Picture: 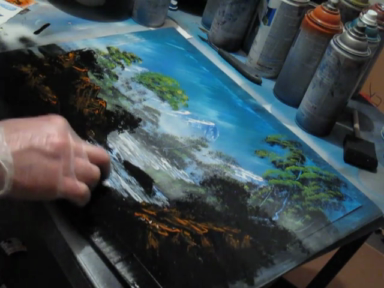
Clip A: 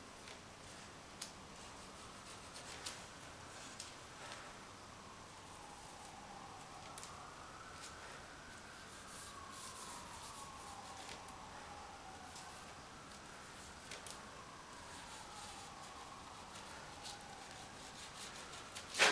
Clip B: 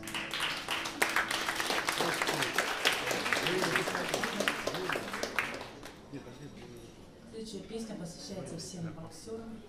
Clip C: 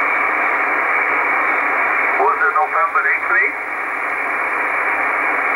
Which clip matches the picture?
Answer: A